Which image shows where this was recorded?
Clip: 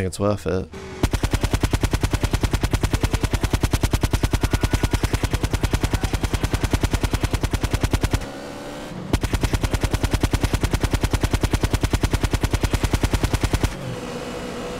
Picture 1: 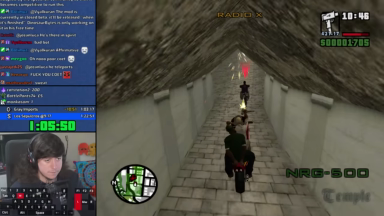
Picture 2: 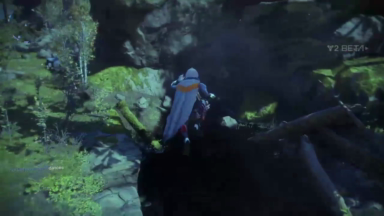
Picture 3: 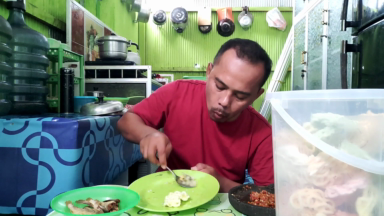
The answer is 1